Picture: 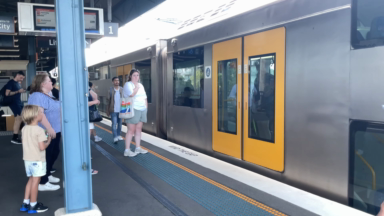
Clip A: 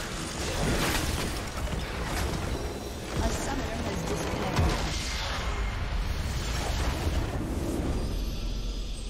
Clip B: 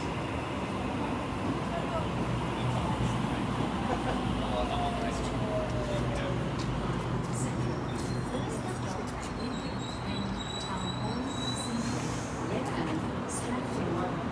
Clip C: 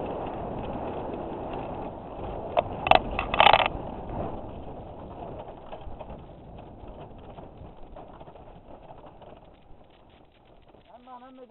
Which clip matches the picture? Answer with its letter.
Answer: B